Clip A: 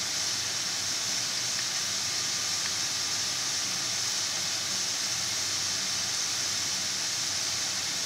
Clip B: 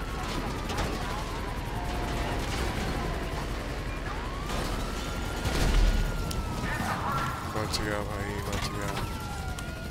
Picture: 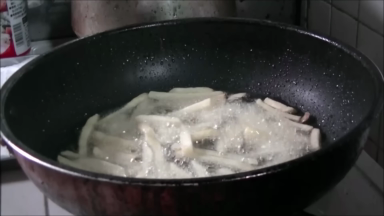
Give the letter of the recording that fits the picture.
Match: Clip A